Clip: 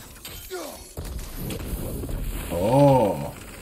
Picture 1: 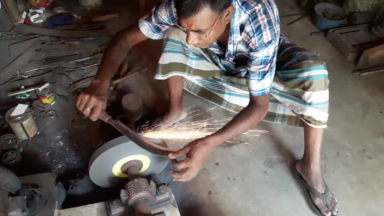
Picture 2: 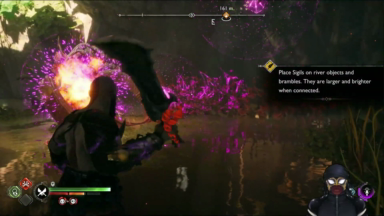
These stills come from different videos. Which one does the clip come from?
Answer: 2